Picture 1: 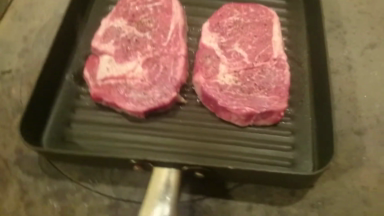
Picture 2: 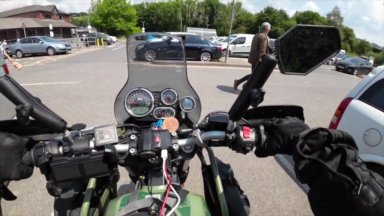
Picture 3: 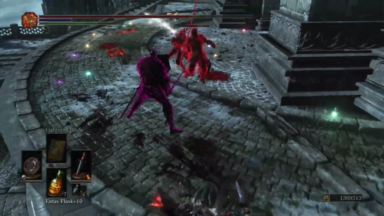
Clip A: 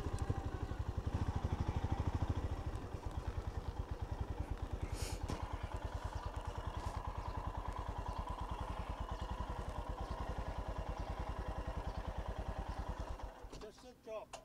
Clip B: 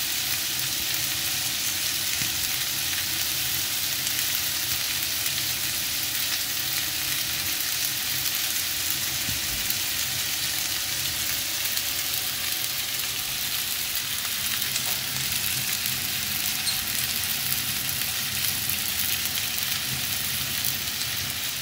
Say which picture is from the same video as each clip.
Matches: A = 2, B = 1